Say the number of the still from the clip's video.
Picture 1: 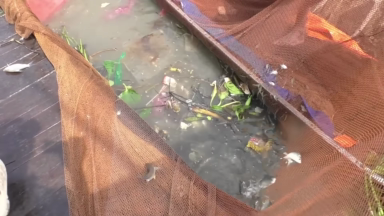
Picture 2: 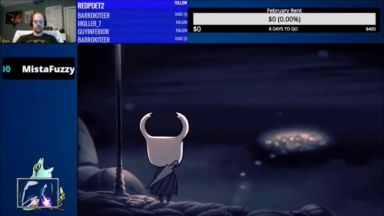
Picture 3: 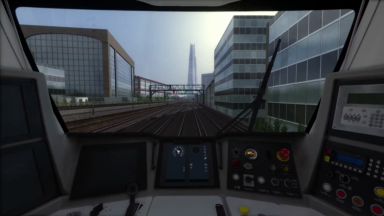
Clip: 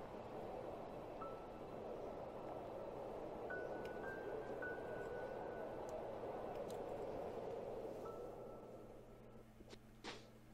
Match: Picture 2